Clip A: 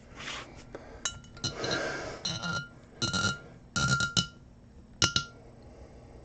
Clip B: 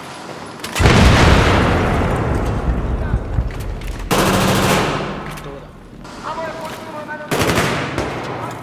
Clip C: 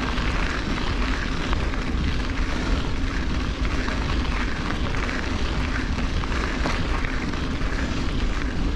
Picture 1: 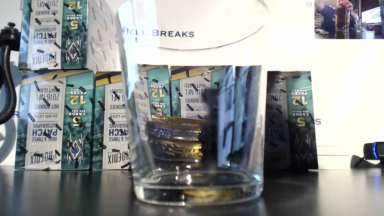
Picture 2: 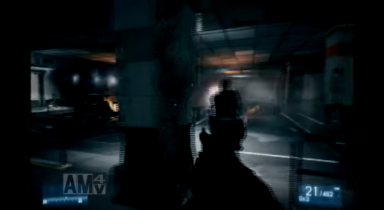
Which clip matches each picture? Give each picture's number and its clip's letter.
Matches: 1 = A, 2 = B